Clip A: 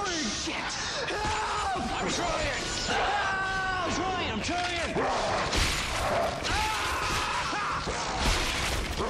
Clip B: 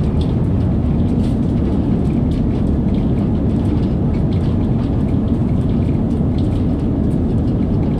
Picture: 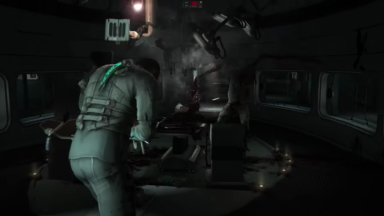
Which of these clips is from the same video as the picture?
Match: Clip A